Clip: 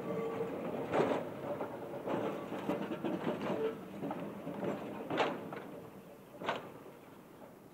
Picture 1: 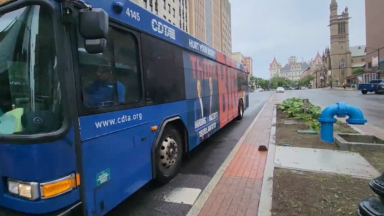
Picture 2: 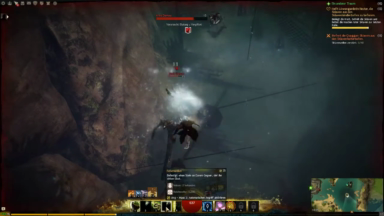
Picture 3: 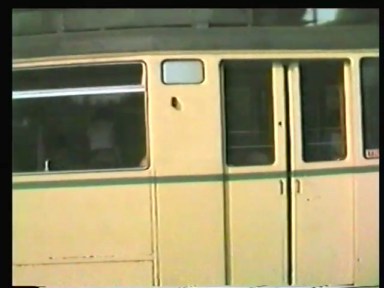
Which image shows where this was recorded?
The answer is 3